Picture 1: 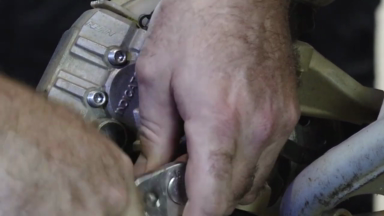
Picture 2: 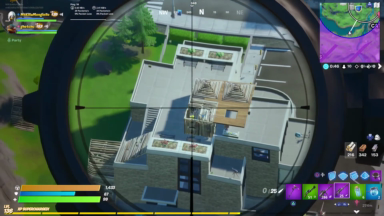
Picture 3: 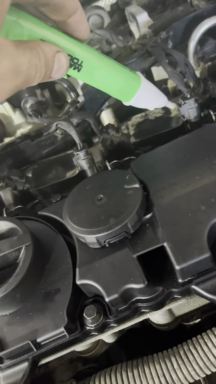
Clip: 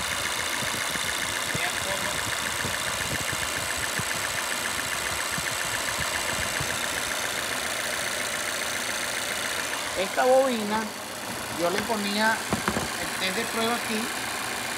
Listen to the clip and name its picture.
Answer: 3